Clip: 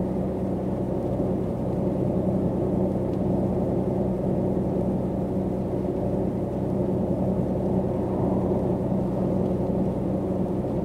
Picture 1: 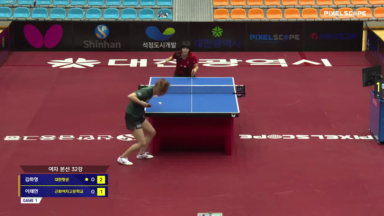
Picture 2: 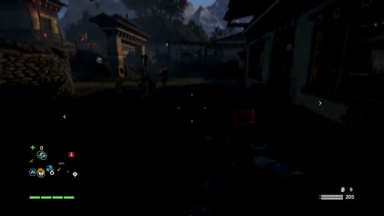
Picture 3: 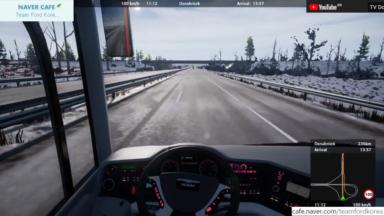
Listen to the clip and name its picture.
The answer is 3